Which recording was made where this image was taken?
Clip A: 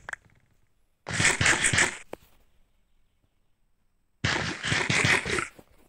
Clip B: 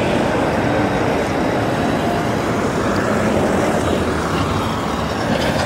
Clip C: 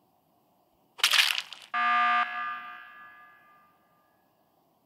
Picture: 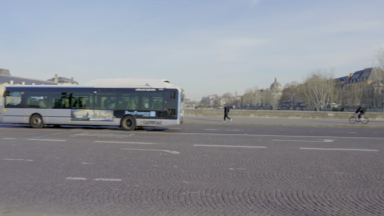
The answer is B